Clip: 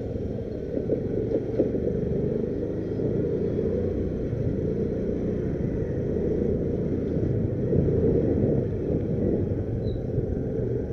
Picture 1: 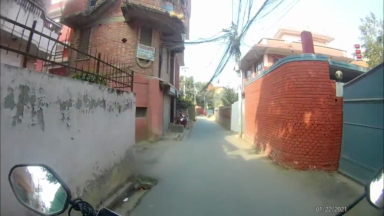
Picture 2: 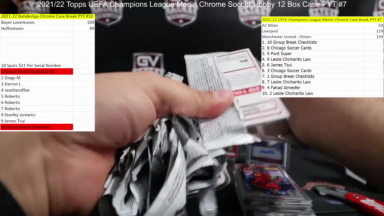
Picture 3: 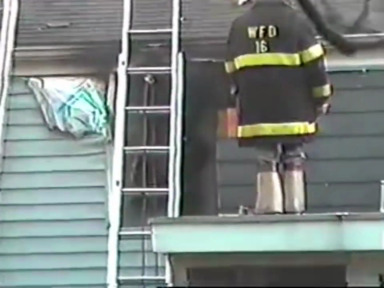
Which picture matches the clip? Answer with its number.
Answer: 1